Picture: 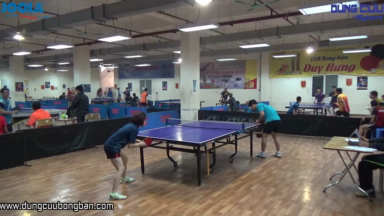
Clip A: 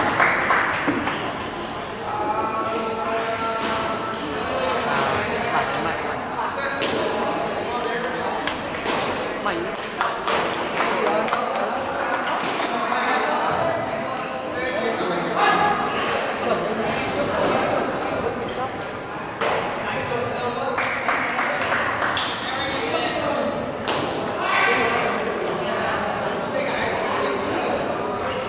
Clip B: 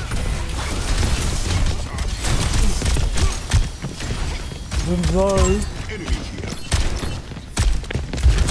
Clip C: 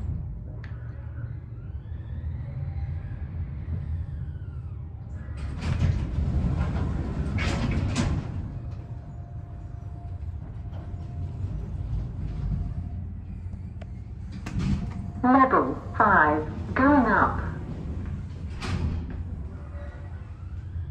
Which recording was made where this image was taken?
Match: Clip A